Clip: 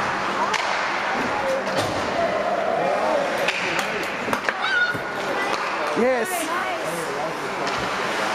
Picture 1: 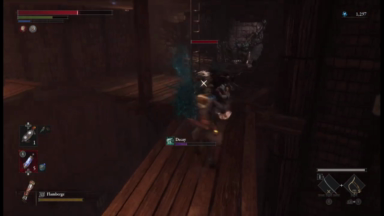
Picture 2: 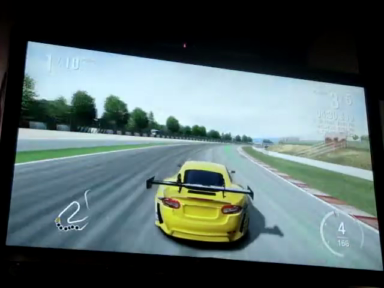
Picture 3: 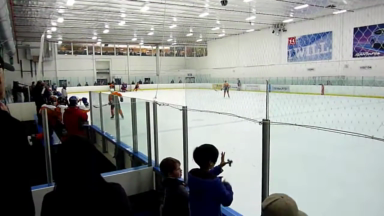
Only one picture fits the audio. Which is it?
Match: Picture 3